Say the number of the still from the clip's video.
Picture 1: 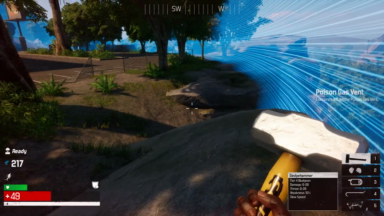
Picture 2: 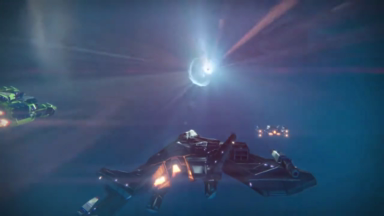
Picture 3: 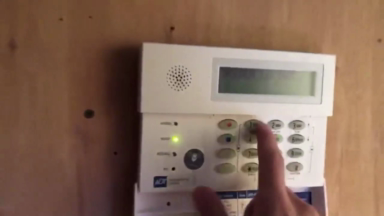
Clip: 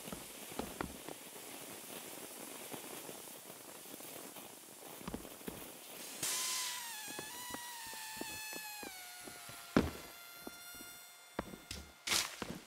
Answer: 1